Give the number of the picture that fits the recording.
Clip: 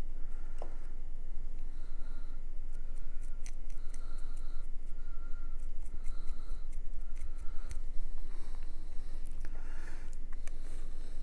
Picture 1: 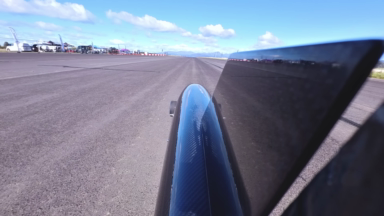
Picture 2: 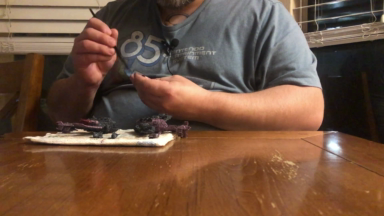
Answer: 2